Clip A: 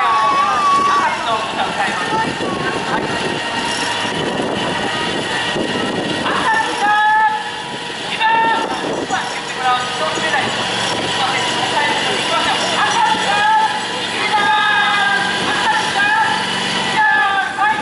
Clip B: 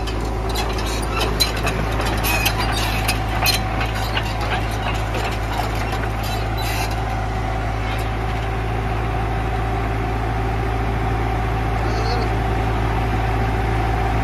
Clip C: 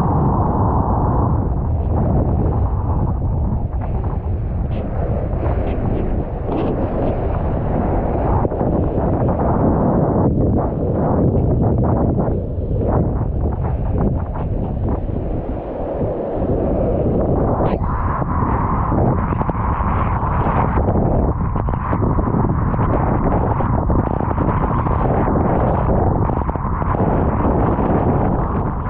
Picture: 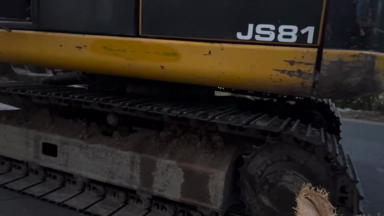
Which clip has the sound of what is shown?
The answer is B